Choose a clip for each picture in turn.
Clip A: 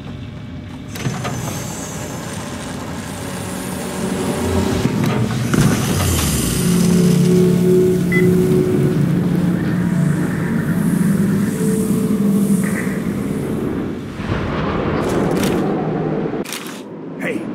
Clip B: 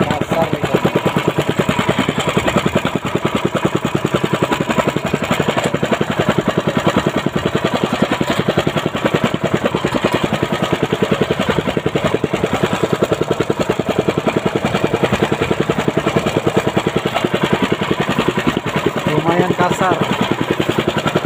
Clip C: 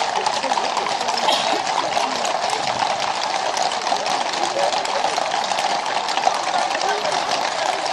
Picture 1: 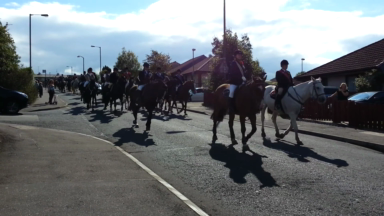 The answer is C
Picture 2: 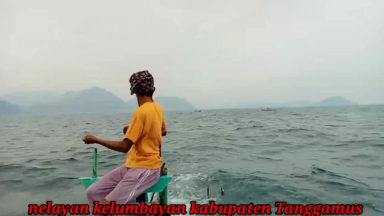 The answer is B